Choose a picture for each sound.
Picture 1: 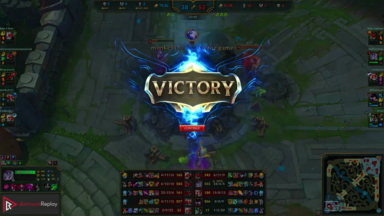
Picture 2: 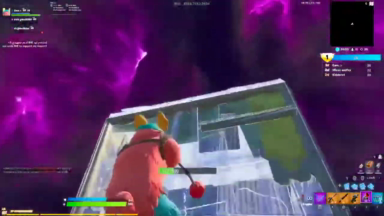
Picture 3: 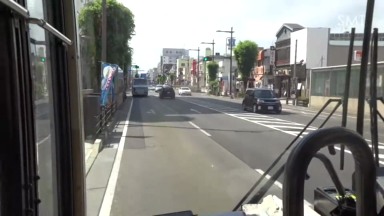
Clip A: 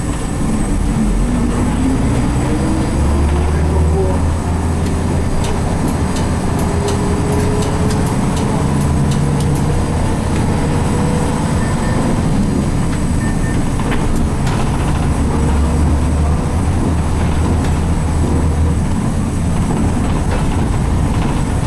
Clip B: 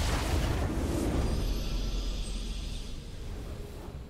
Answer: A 3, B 1